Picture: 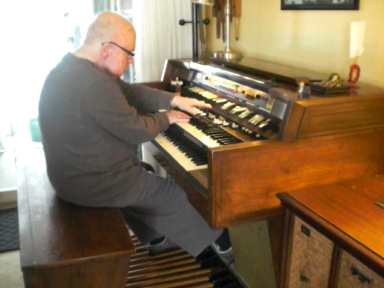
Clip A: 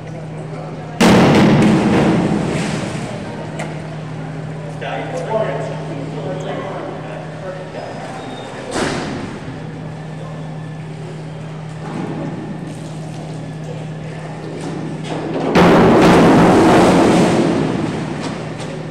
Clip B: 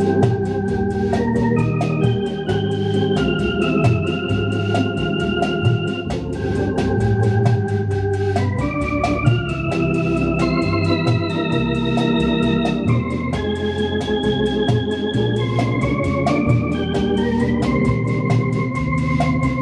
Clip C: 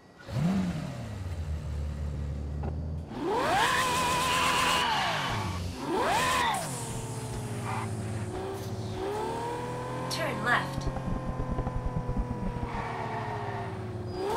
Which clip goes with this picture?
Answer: B